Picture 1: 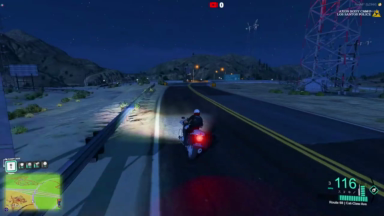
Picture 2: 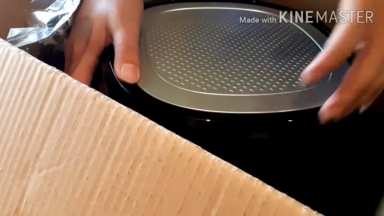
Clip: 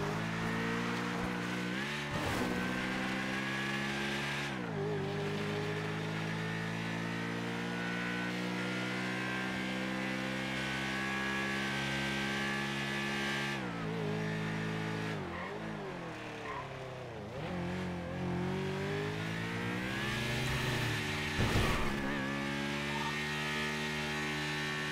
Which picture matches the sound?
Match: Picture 1